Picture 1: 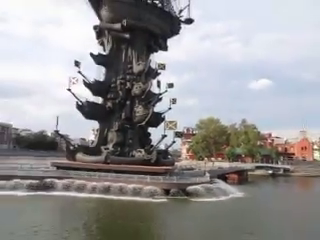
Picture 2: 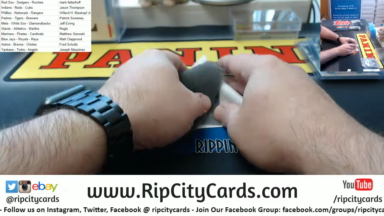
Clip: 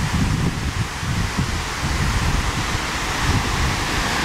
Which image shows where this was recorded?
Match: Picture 1